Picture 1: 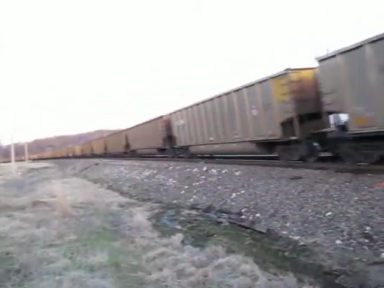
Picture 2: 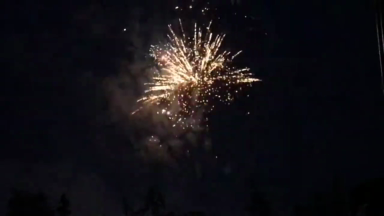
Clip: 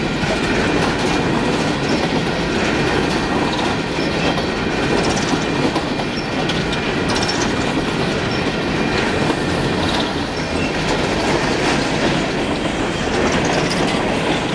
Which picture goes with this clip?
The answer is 1